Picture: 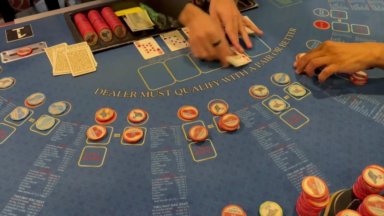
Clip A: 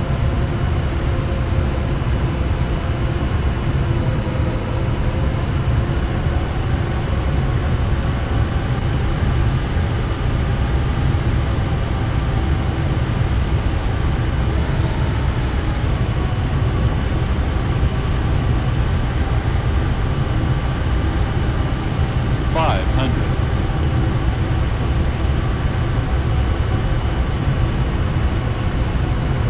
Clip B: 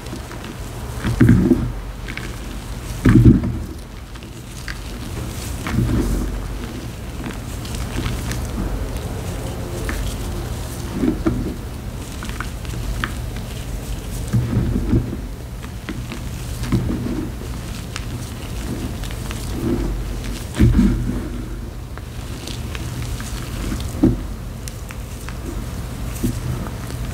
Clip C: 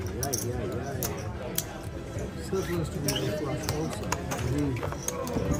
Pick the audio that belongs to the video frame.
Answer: C